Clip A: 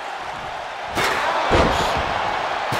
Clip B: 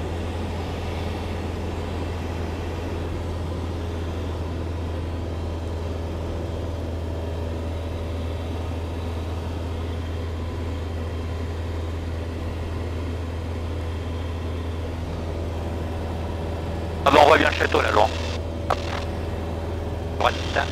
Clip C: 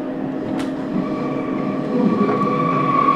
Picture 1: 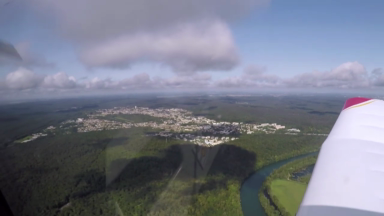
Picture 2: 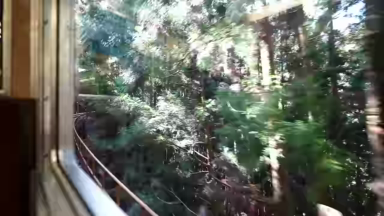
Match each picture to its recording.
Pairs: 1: B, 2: C